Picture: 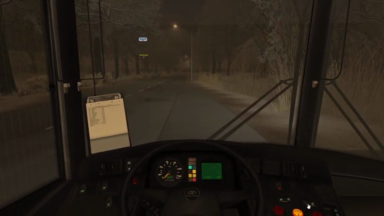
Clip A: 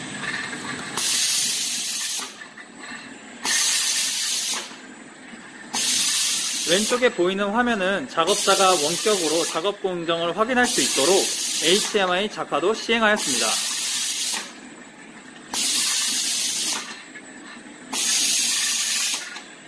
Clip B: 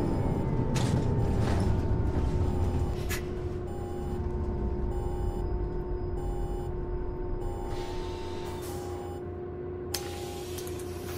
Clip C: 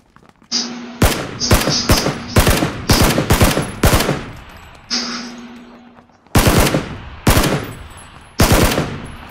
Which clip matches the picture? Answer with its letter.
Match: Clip B